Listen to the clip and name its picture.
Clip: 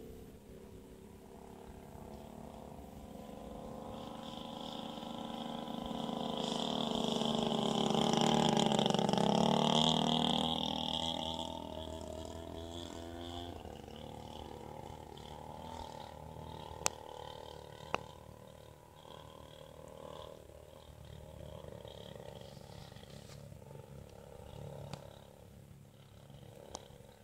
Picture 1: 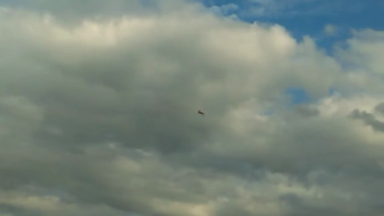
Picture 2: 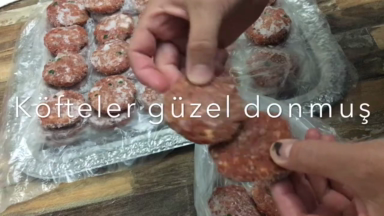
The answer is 1